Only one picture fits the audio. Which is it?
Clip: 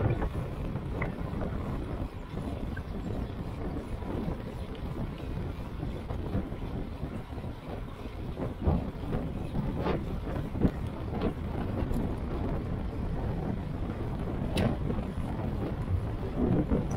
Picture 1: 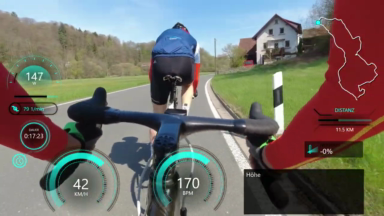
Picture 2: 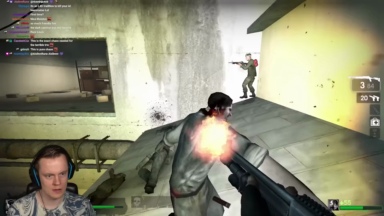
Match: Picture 1